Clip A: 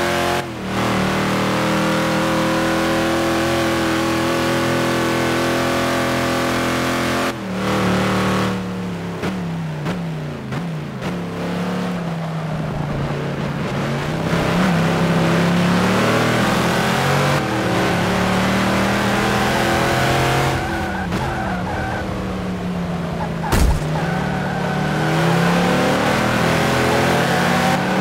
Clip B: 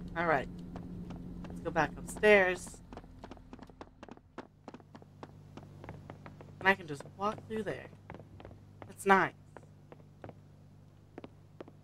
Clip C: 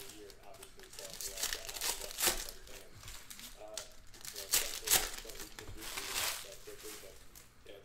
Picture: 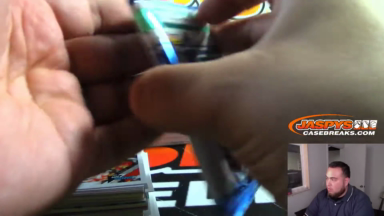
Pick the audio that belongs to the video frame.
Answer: C